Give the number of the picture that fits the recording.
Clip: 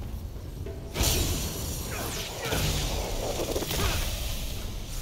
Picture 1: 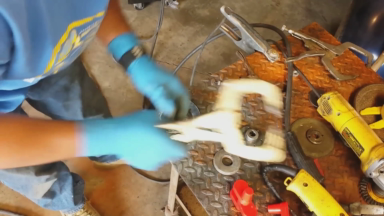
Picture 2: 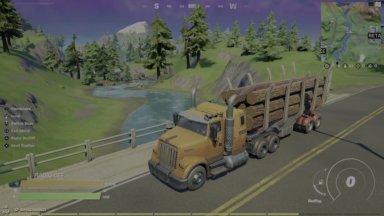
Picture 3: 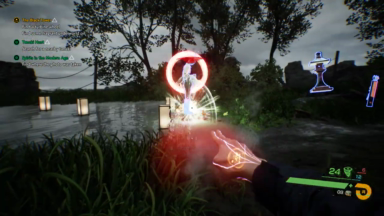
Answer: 3